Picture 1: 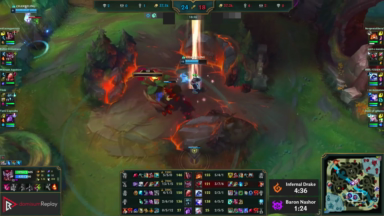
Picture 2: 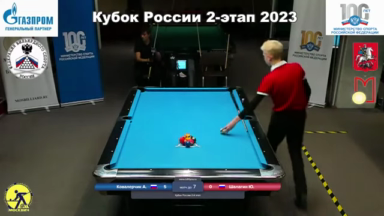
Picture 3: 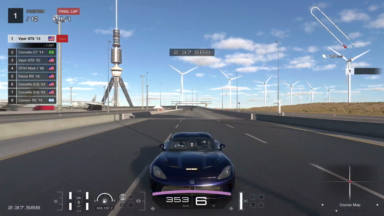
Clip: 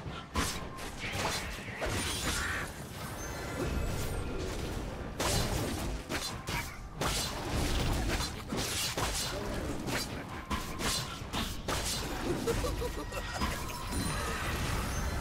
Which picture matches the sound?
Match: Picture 1